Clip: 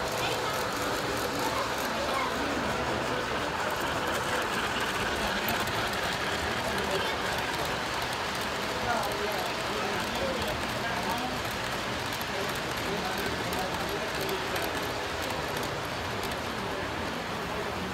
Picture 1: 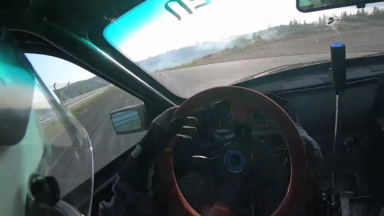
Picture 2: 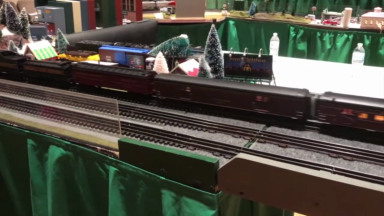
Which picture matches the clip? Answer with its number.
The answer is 2